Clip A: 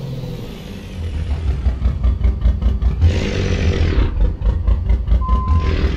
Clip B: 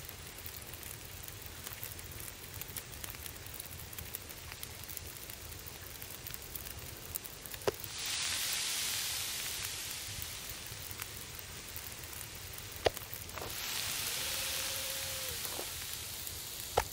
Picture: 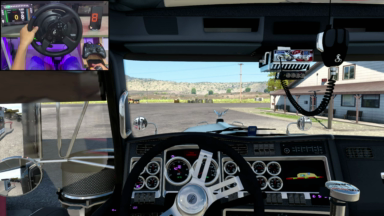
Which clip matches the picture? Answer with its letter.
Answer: A